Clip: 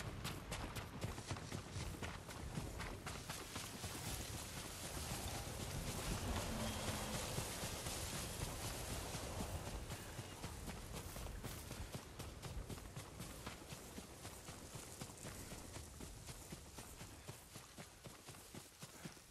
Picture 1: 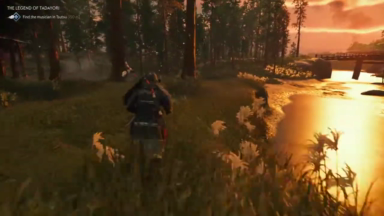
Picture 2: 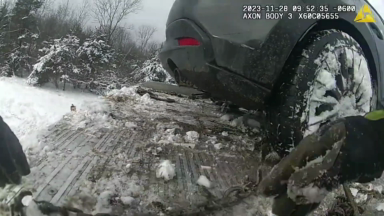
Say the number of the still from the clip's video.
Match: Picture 1